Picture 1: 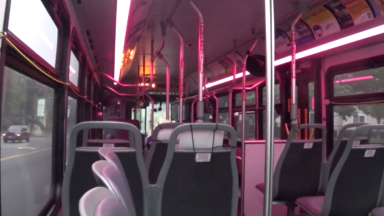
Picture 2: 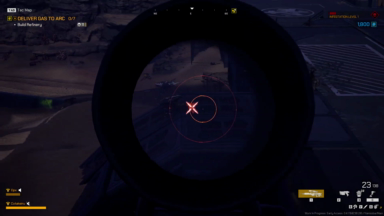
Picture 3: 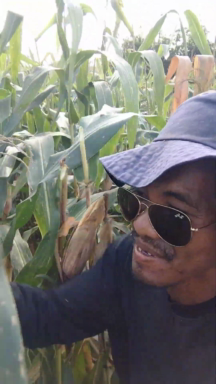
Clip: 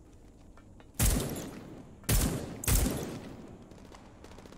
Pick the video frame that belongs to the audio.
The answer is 2